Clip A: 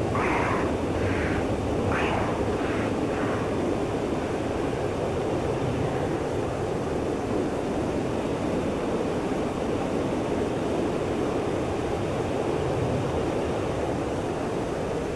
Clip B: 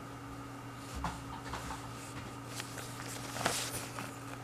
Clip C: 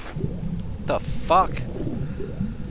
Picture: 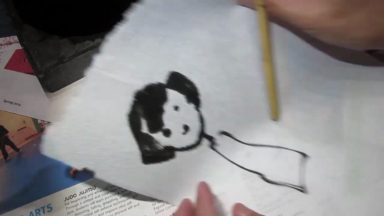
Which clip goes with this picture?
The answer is B